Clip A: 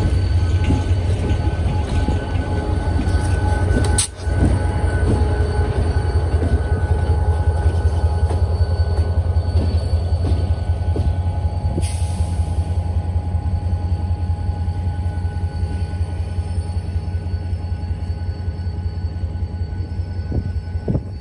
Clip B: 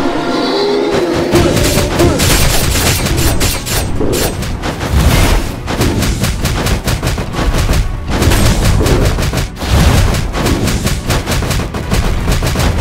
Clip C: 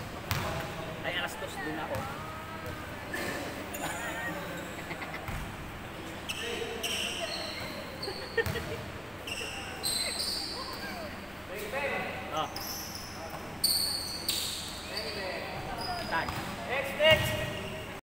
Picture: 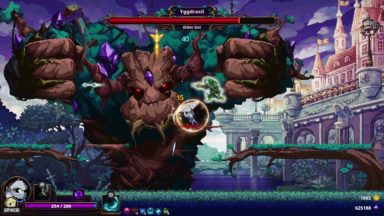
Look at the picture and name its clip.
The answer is B